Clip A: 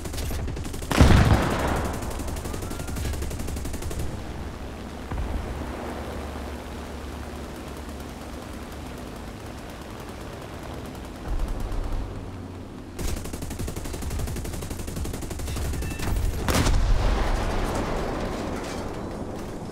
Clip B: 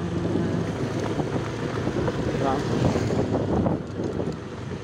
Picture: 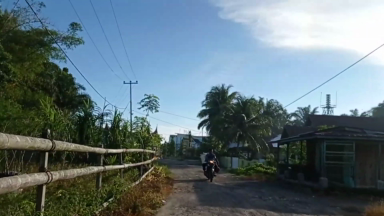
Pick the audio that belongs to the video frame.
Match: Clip B